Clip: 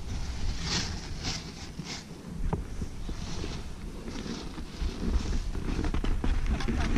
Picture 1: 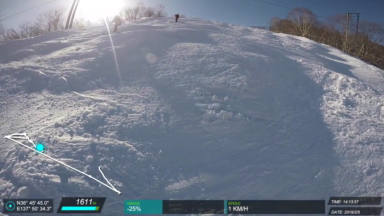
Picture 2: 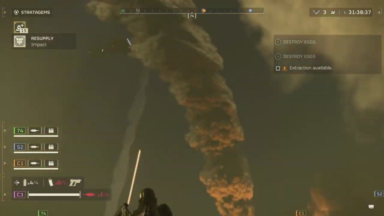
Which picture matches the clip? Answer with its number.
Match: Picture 1